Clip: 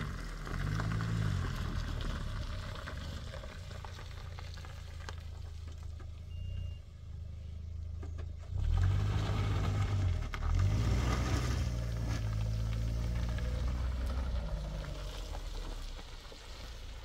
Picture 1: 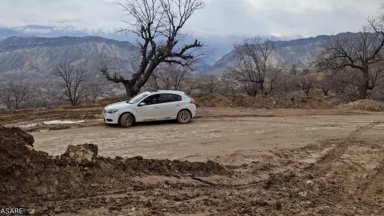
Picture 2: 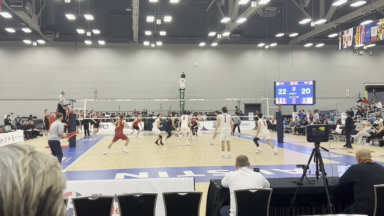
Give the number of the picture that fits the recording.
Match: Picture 1